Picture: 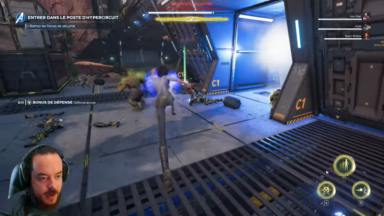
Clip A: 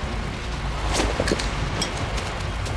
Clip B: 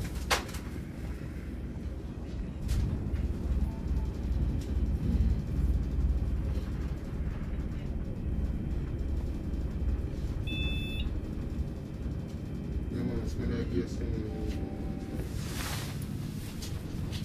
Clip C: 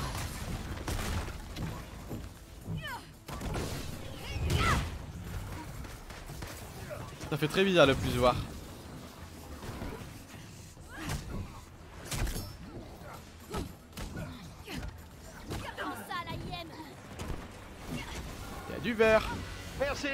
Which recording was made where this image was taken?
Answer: C